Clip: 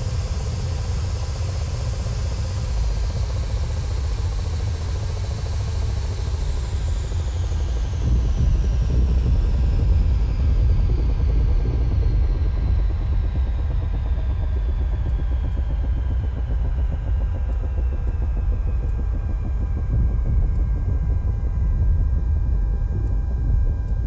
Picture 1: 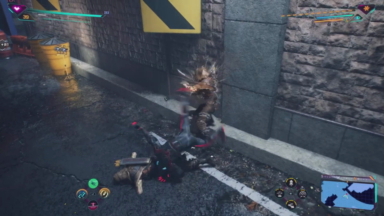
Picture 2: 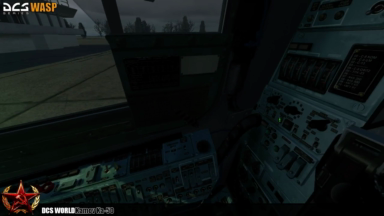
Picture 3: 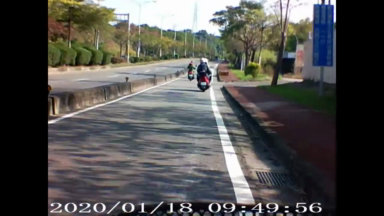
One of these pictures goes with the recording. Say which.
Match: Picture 2